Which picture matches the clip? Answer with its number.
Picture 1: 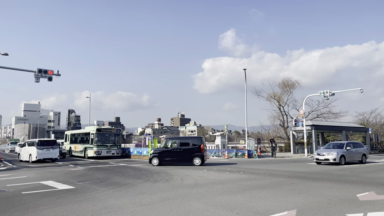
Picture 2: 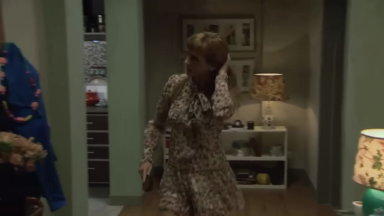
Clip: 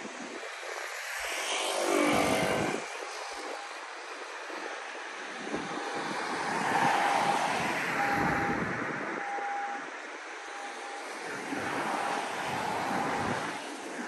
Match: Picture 1